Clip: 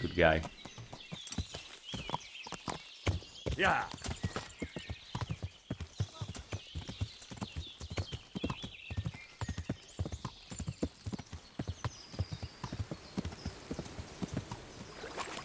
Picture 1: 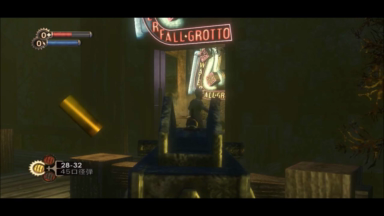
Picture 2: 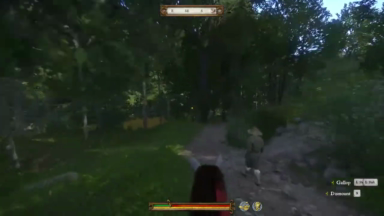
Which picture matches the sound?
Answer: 2